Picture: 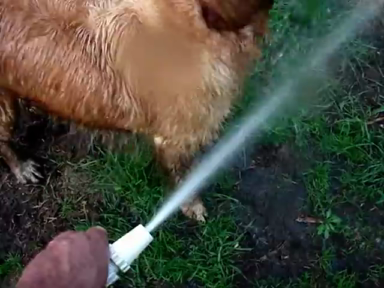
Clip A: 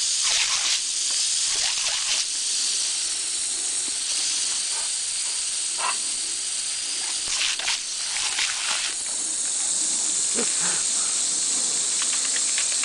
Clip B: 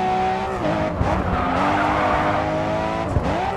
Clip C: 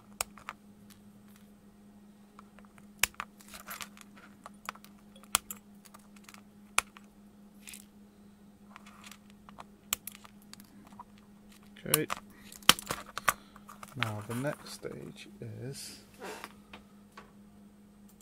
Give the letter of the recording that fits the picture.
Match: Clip A